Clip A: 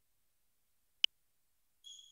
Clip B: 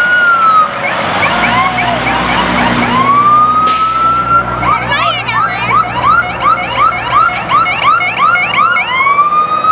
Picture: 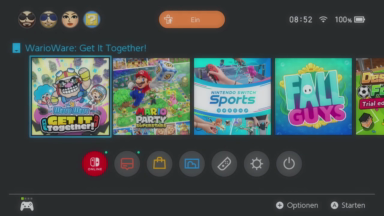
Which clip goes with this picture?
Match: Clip A